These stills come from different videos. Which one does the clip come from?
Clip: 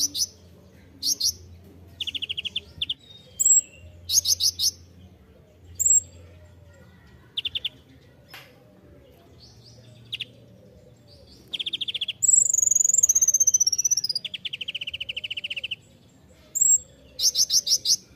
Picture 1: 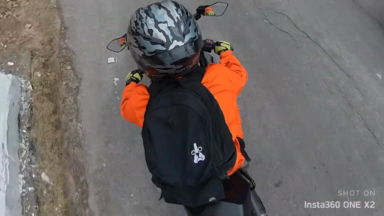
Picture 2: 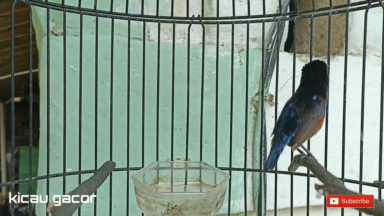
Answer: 2